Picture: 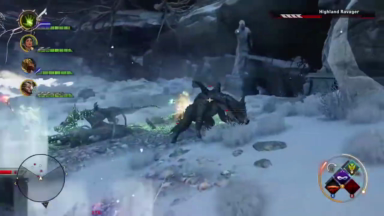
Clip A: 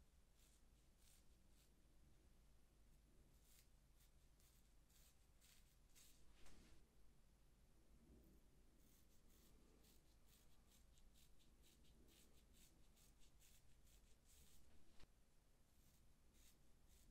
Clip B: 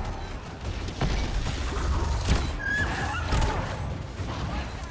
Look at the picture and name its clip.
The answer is B